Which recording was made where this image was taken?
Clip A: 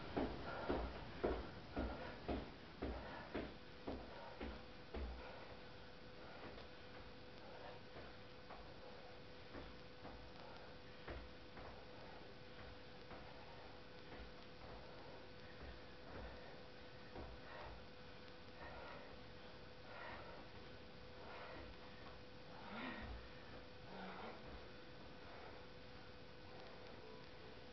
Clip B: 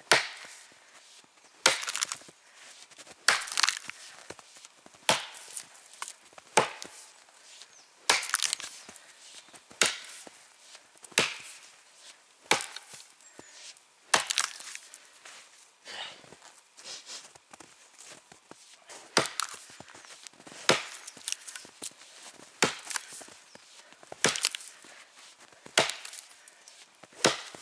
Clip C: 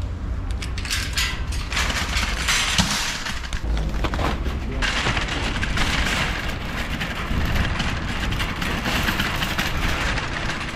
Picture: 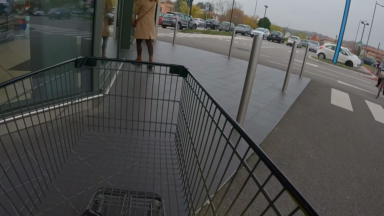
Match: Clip C